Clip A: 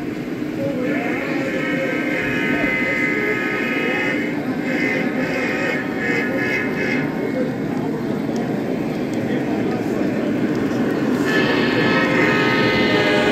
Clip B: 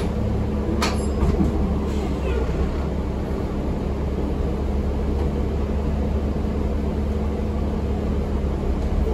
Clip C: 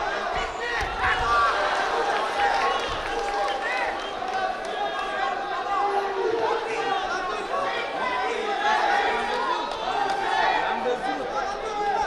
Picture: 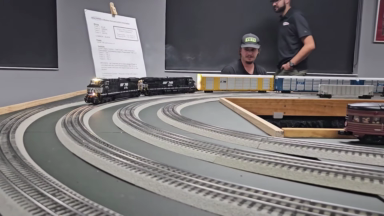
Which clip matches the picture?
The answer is A